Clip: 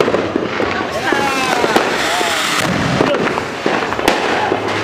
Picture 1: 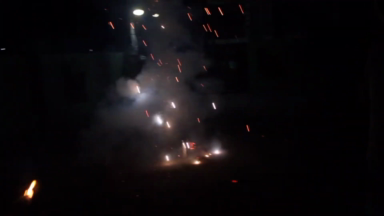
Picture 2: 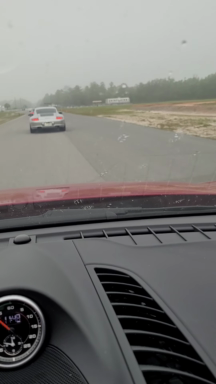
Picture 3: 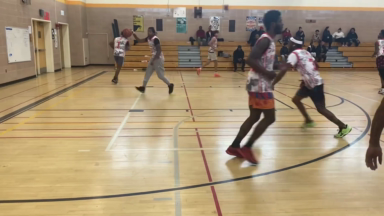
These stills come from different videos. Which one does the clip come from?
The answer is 1